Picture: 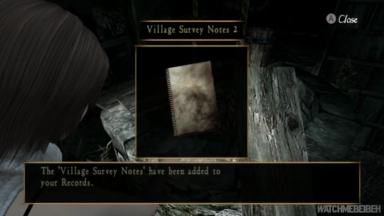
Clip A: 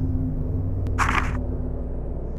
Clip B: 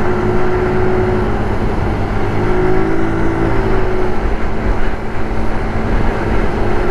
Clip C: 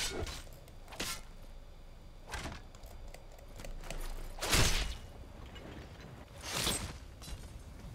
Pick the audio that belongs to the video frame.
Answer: A